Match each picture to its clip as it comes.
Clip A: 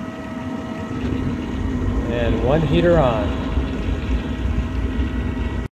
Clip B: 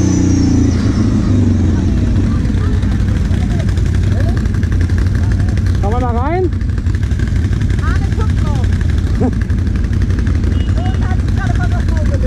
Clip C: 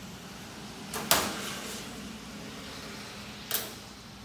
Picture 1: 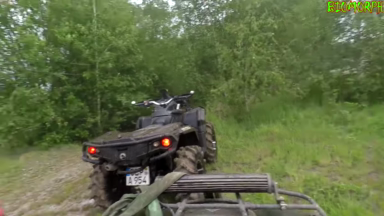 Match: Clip B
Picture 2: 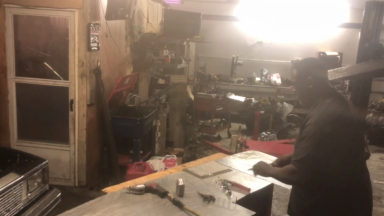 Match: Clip C